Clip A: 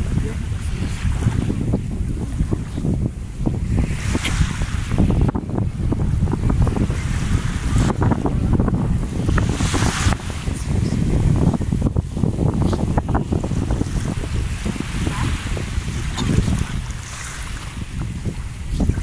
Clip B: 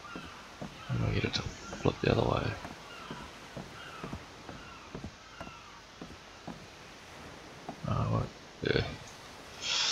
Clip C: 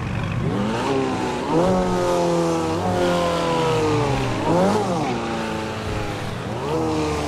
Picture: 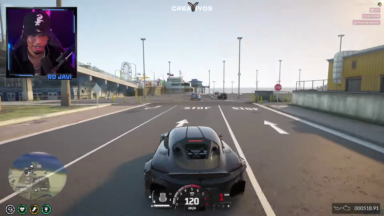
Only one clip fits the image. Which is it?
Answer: C